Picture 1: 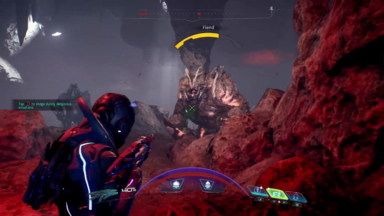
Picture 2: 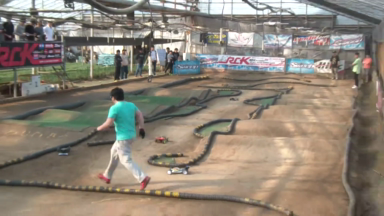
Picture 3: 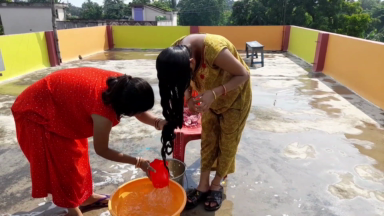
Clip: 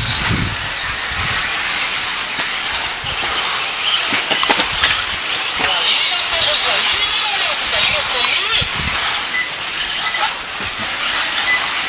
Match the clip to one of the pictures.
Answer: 2